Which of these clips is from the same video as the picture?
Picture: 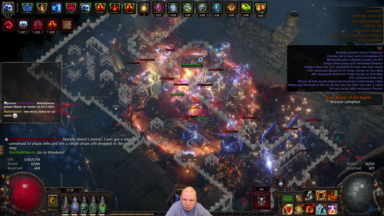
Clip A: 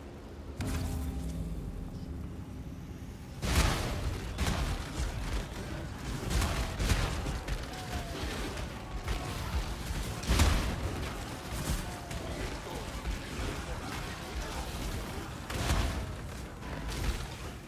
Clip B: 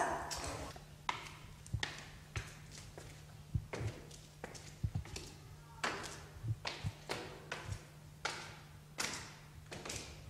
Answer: A